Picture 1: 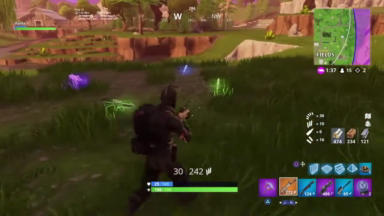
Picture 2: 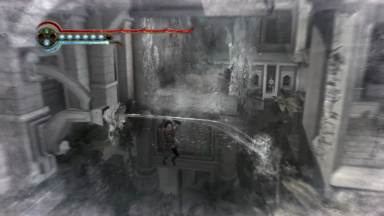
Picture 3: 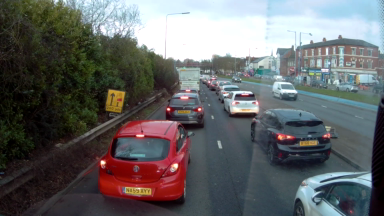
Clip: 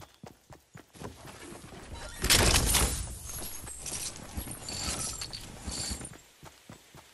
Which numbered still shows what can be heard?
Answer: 1